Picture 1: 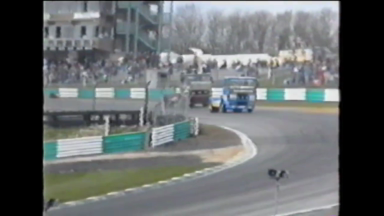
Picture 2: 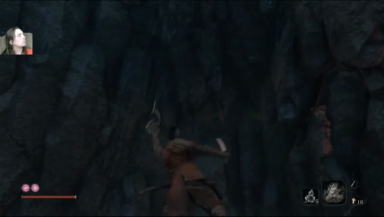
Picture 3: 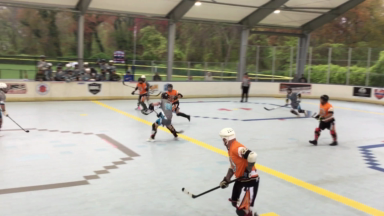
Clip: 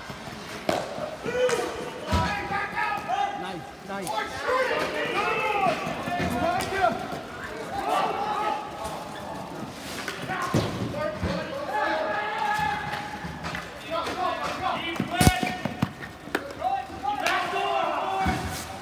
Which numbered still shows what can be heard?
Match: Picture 3